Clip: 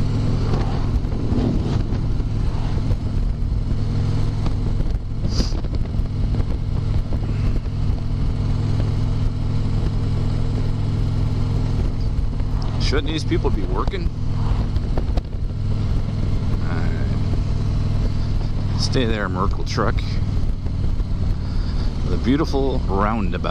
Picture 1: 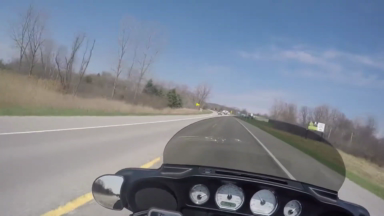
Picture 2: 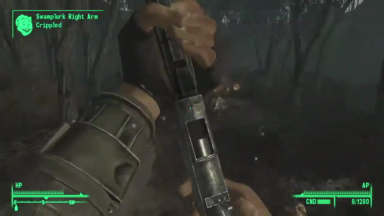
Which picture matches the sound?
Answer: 1